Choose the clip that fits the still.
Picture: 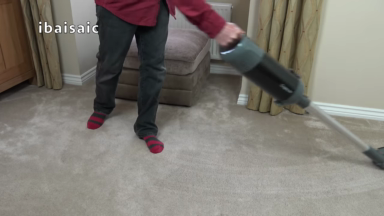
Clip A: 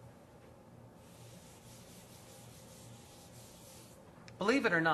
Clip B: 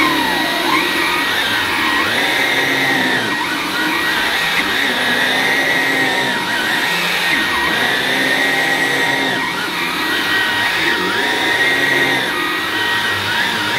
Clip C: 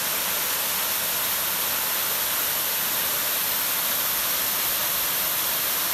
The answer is B